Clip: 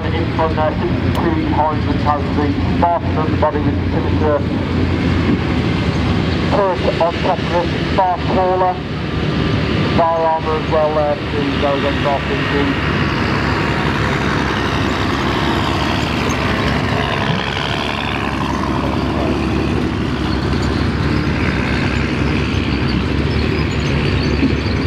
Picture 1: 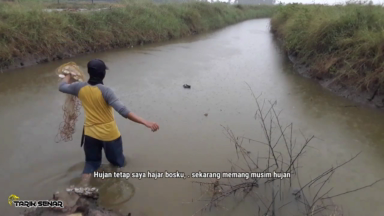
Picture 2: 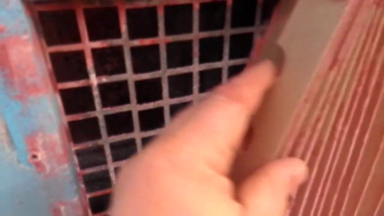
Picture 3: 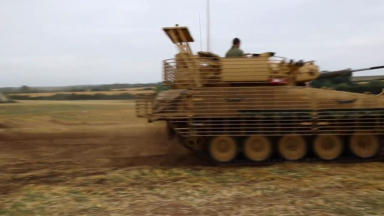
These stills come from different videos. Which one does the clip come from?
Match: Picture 3